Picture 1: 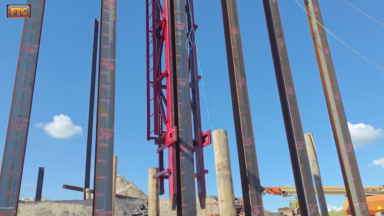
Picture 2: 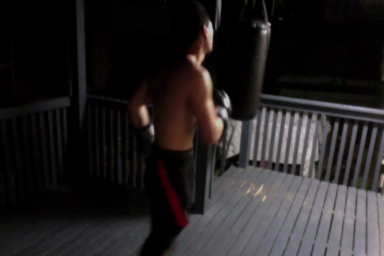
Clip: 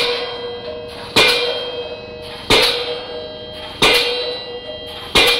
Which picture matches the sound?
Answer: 1